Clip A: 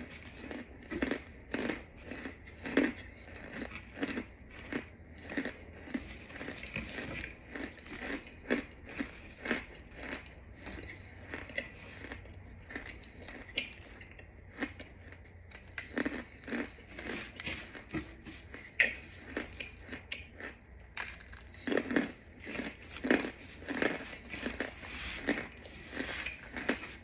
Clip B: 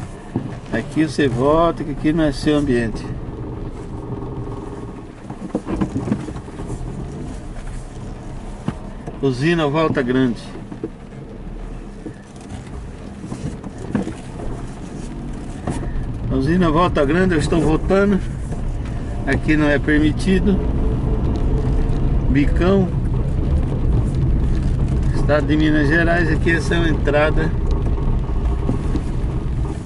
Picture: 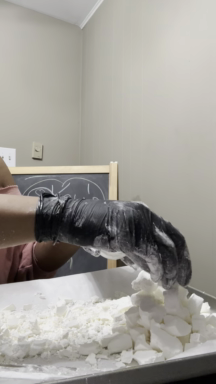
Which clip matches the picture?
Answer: A